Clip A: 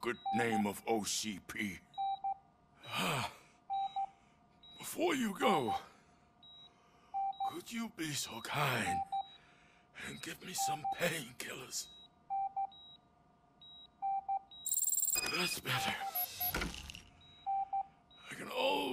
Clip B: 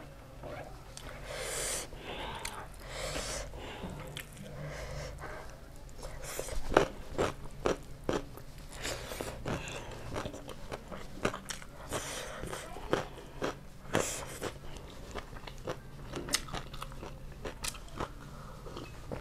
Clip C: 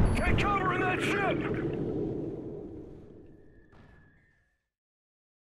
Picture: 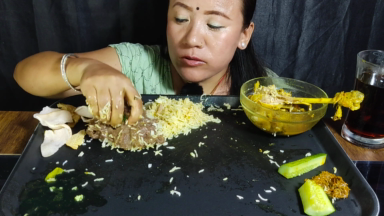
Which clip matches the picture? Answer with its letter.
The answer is B